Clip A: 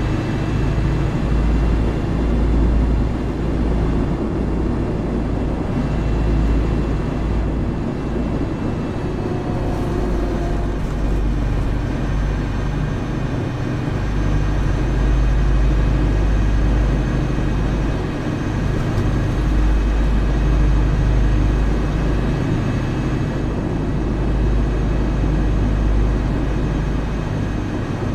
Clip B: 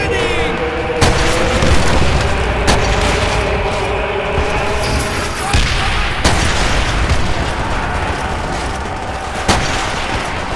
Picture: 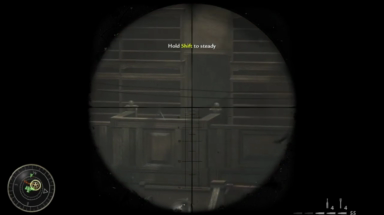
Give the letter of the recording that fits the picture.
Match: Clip B